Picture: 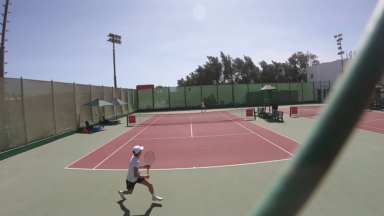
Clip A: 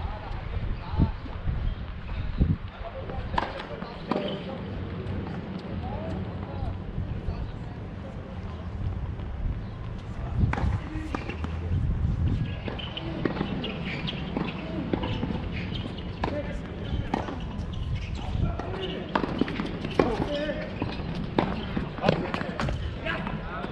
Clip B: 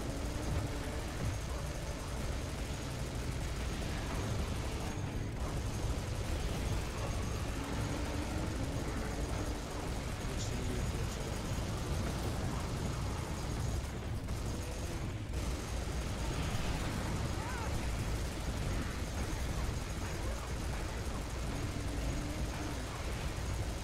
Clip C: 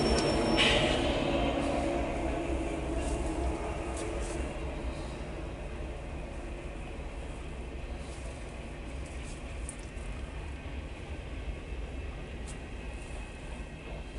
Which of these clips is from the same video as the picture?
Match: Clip A